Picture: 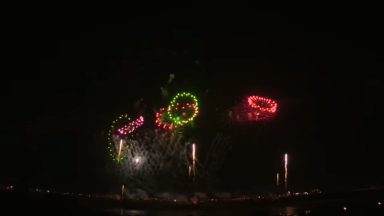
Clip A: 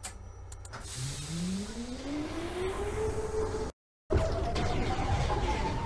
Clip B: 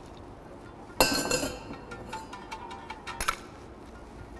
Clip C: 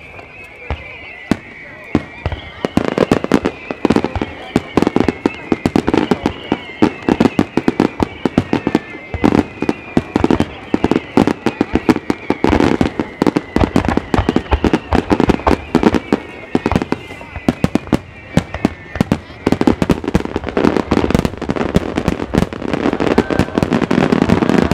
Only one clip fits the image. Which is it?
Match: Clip C